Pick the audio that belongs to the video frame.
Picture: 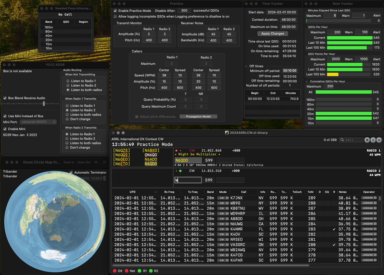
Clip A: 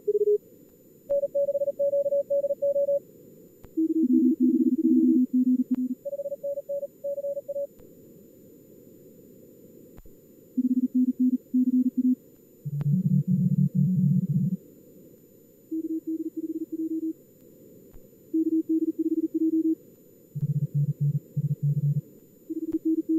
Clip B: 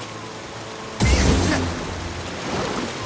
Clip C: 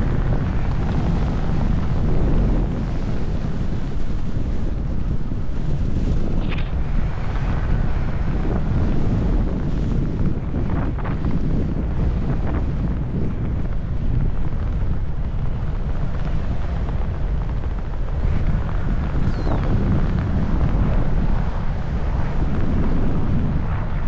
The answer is A